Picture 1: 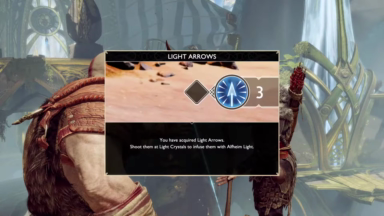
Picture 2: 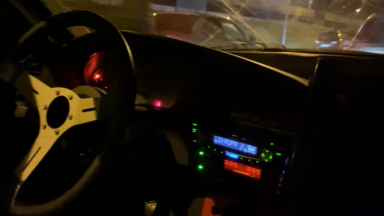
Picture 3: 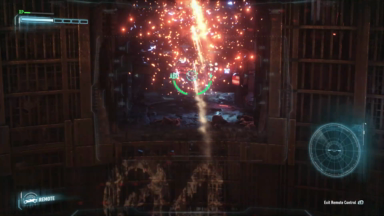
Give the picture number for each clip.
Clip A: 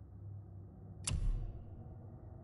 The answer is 1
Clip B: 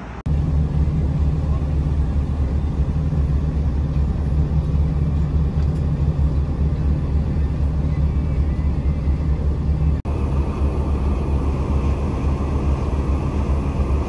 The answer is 2